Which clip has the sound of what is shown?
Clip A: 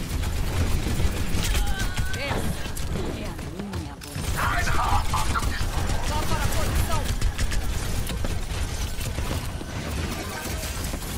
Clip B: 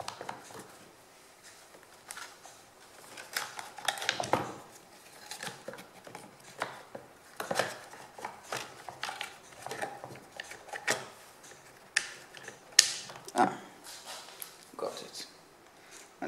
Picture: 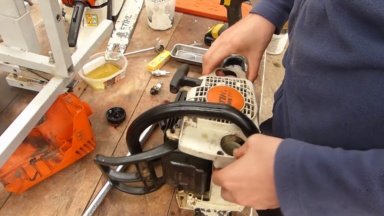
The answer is B